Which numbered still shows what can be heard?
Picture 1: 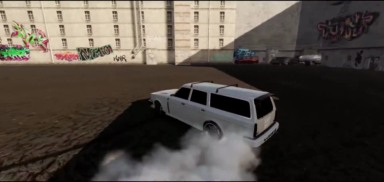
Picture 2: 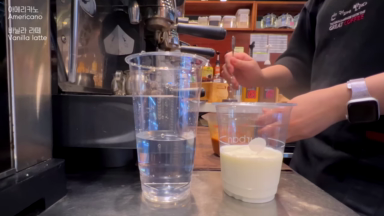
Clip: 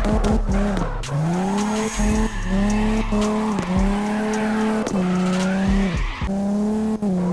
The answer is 1